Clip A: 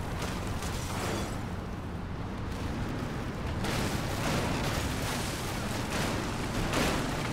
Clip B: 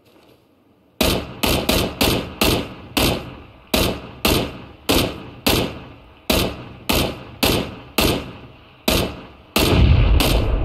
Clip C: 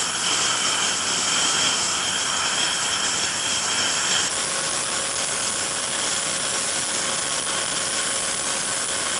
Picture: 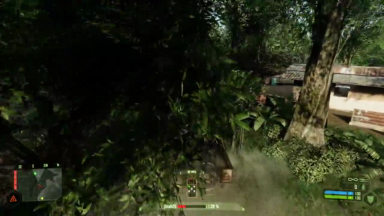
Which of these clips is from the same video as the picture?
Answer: A